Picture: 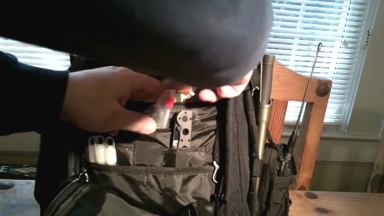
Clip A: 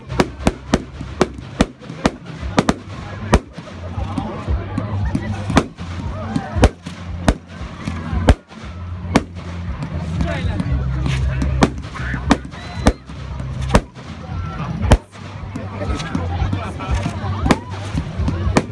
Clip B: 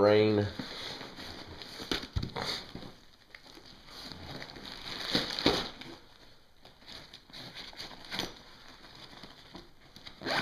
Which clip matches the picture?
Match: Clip B